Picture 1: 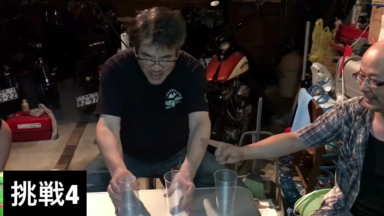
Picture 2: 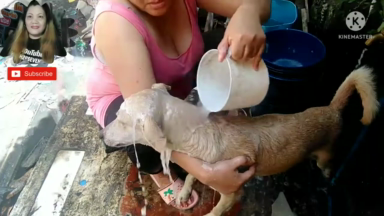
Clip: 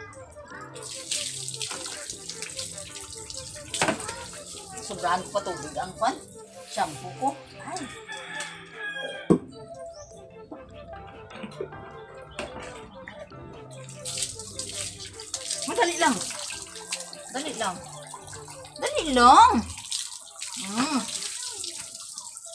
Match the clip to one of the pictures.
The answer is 2